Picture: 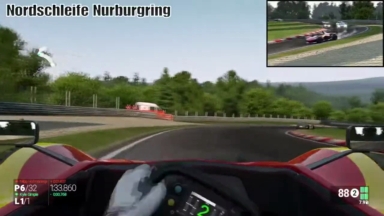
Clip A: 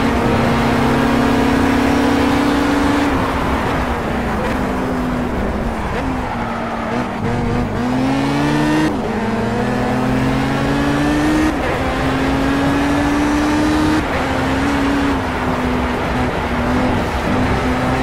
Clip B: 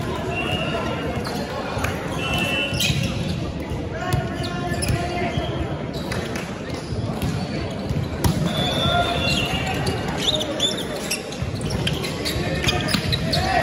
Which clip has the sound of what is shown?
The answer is A